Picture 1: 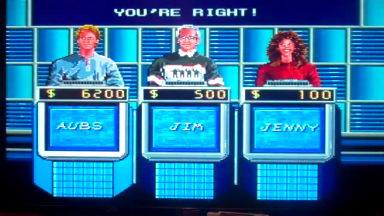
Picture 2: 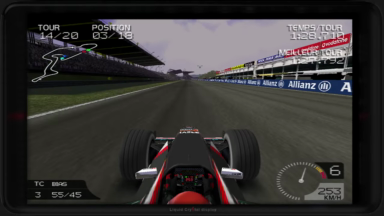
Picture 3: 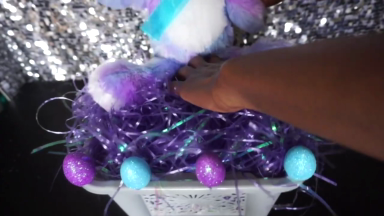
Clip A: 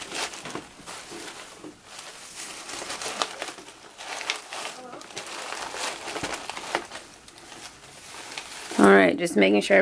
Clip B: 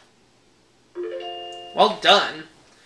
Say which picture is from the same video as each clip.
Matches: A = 3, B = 1